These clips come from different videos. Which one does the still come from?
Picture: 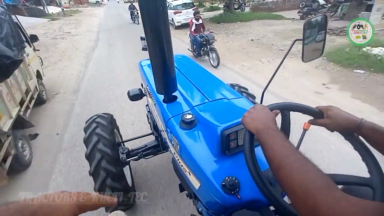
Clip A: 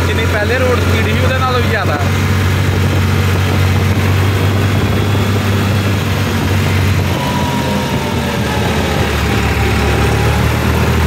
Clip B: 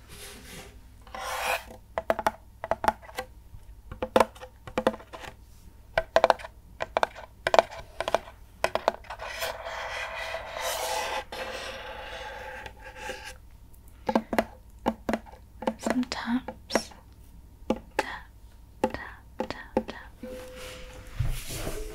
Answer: A